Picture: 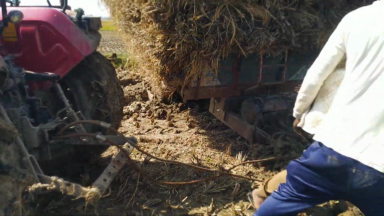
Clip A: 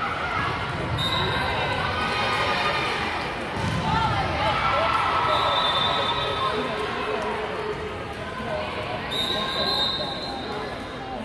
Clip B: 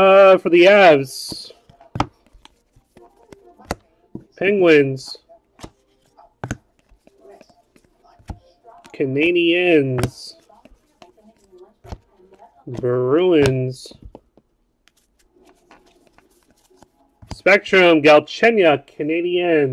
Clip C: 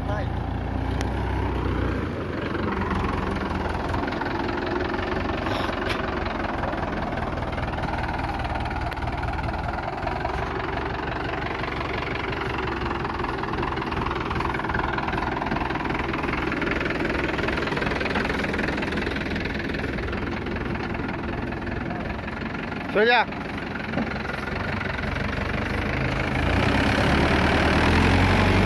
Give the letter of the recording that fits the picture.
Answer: C